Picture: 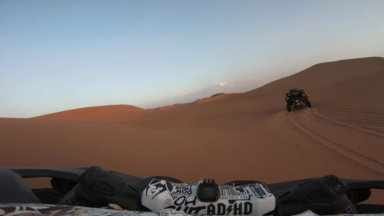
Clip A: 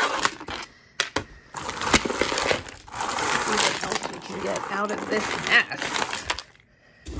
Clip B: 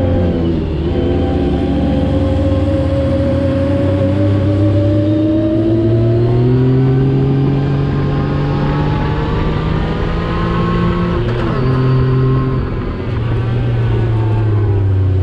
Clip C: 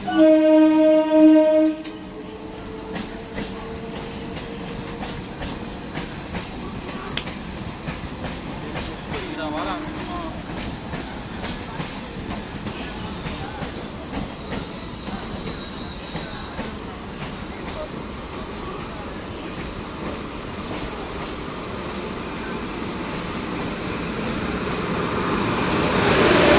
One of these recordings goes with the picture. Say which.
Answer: B